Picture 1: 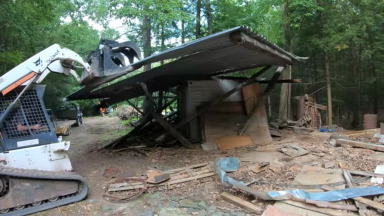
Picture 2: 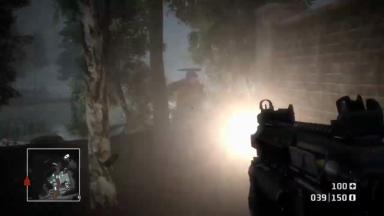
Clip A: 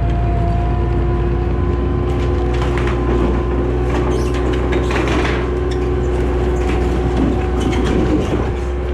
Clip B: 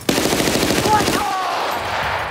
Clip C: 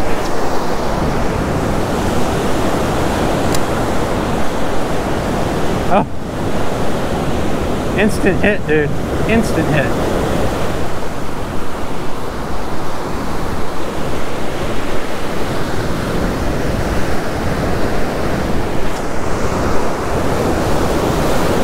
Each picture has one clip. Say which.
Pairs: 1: A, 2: B